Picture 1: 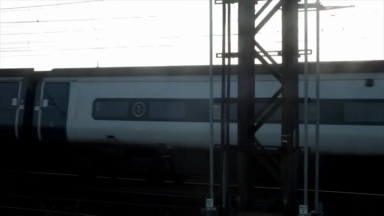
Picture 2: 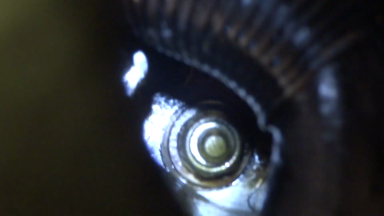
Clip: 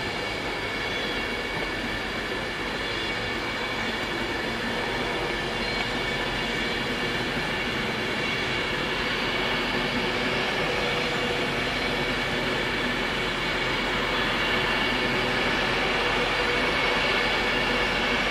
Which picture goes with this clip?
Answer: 1